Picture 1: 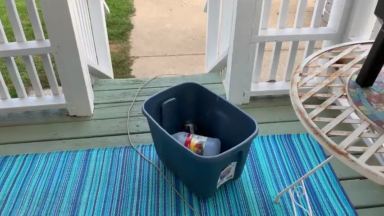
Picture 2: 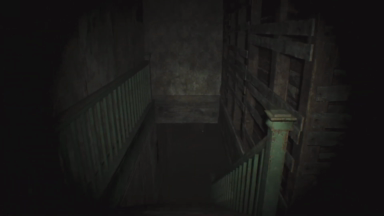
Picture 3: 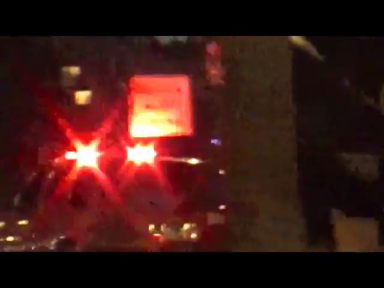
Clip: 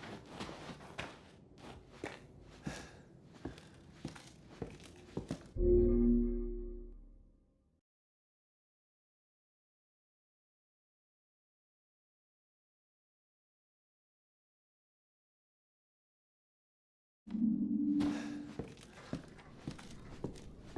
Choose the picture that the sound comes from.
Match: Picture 2